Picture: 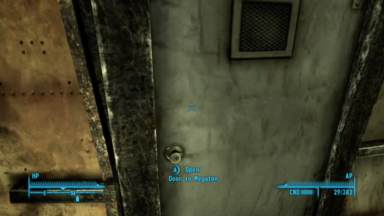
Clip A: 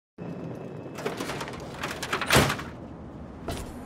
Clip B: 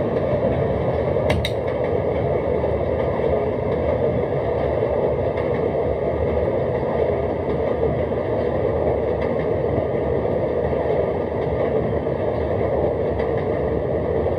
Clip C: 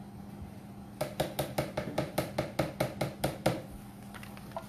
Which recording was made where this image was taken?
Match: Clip A